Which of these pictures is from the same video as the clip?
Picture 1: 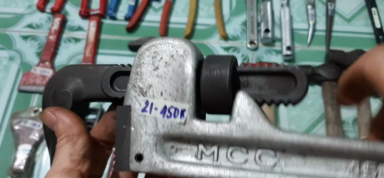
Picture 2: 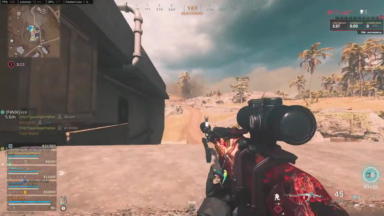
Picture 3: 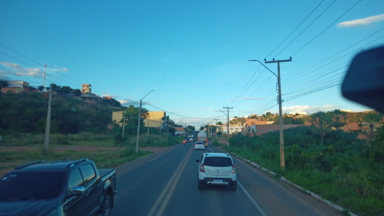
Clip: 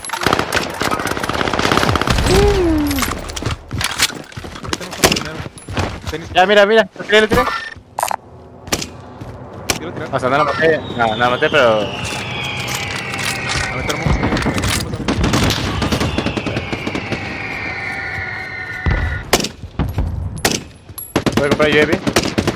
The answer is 2